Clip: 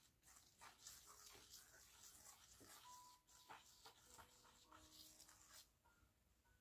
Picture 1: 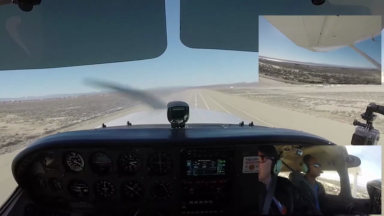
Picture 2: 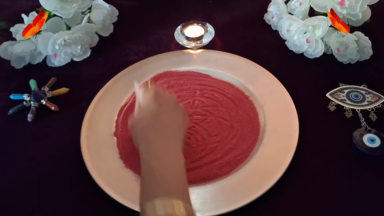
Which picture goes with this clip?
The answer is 2